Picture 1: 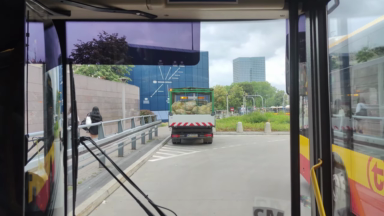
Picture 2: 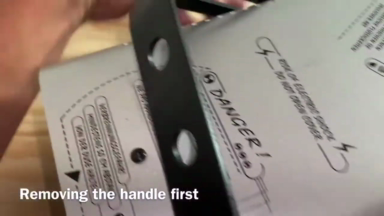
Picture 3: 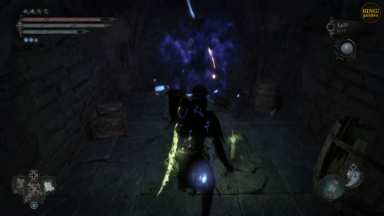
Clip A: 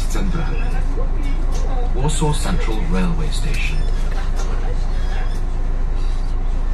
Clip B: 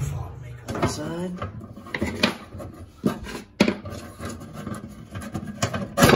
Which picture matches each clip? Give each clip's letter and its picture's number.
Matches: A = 1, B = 2